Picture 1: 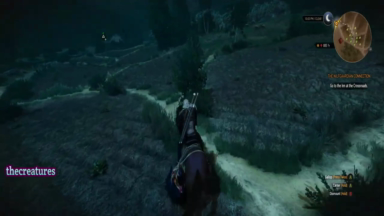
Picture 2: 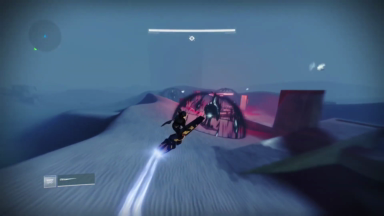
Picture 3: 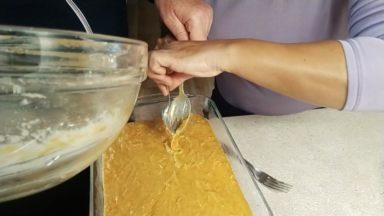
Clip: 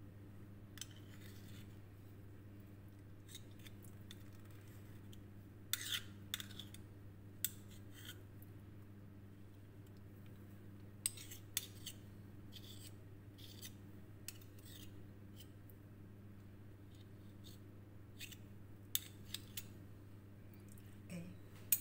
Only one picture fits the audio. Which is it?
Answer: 3